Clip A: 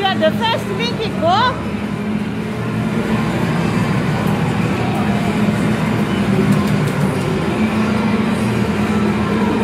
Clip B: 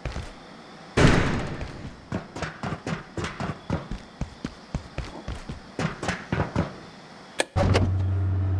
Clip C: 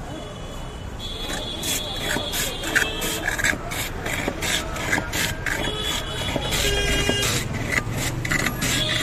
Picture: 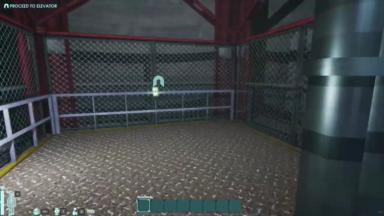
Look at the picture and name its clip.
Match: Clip B